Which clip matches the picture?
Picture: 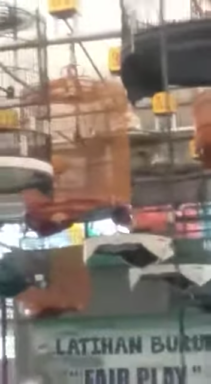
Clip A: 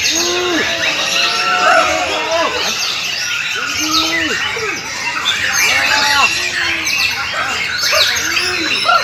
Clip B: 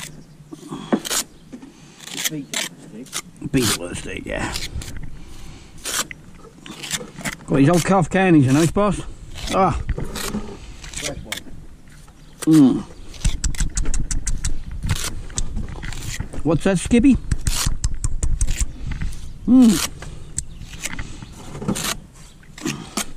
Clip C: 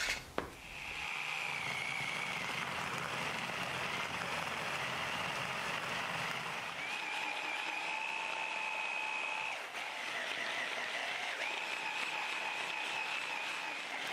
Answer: A